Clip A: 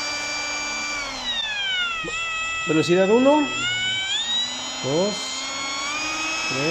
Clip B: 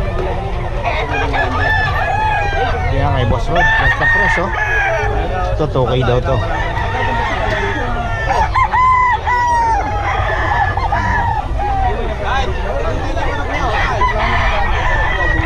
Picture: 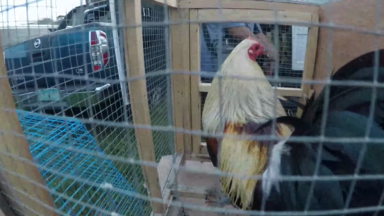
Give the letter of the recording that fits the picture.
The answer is B